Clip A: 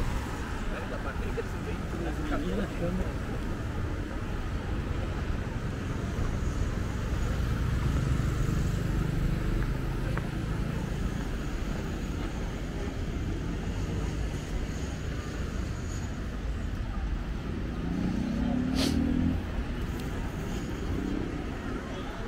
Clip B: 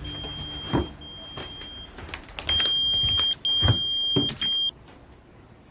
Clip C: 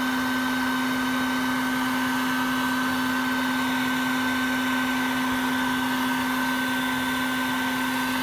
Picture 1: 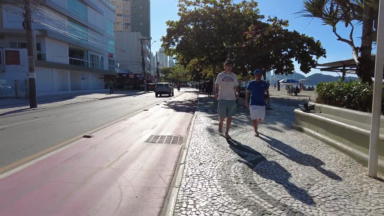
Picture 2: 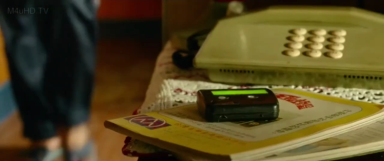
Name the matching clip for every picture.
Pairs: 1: A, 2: B